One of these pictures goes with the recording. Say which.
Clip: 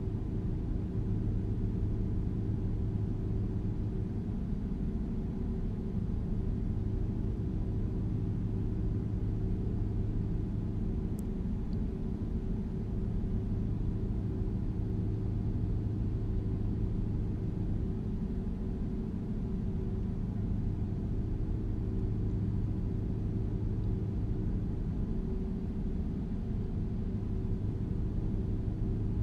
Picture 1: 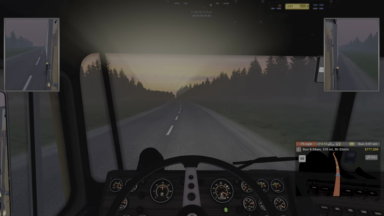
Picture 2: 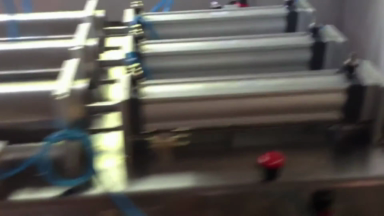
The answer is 1